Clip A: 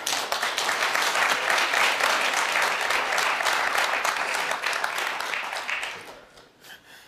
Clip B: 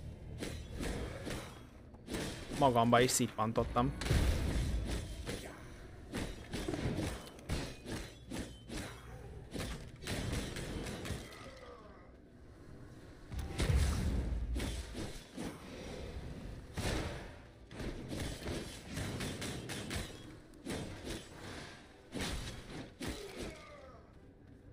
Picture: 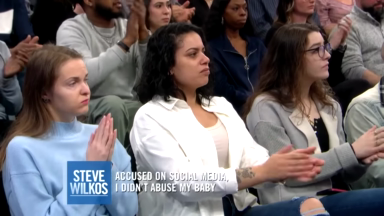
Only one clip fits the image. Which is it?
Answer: A